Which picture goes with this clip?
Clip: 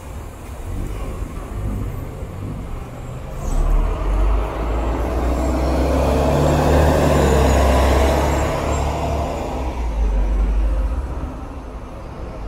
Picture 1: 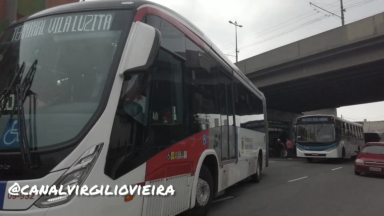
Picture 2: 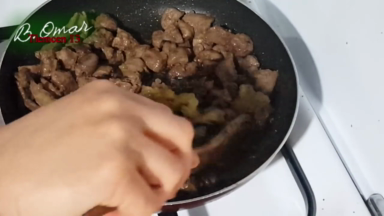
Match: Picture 1